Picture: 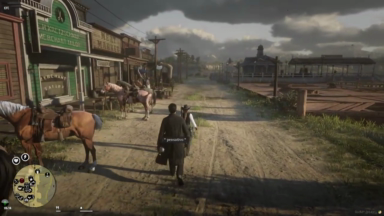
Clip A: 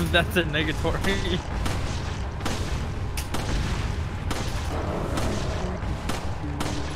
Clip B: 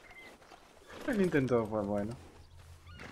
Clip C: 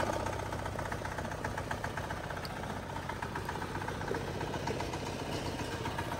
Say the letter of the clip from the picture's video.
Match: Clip B